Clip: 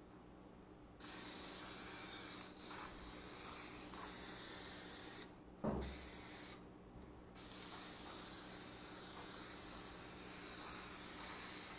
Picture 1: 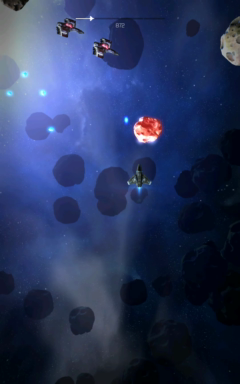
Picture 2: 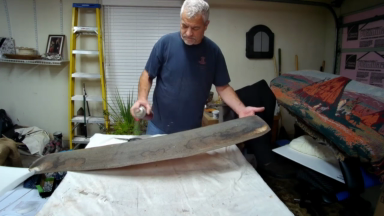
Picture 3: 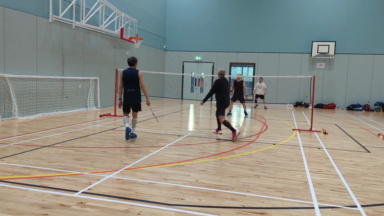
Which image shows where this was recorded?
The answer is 2